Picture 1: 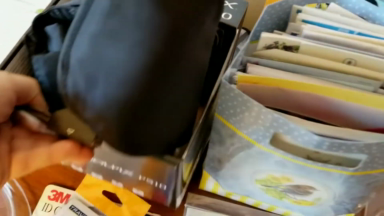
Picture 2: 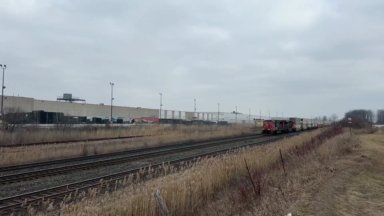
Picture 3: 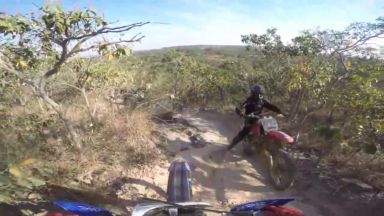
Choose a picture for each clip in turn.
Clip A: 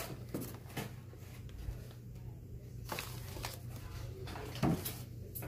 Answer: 1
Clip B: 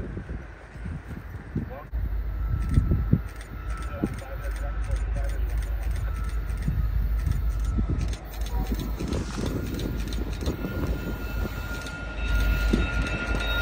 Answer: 2